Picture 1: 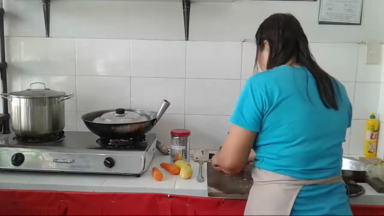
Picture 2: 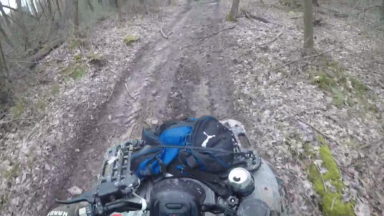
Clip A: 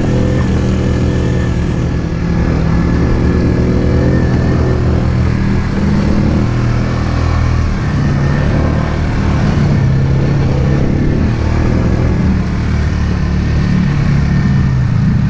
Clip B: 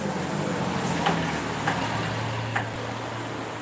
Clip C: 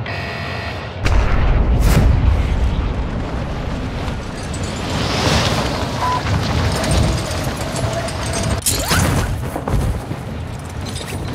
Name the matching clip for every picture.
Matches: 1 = B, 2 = A